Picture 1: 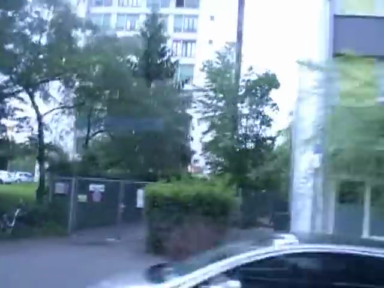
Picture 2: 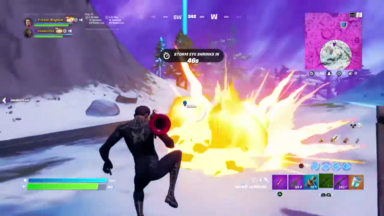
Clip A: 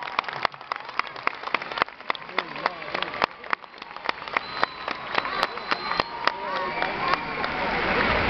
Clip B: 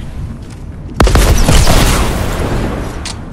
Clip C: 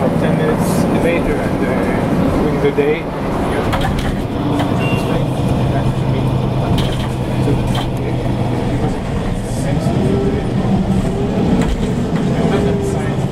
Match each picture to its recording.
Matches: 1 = C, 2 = B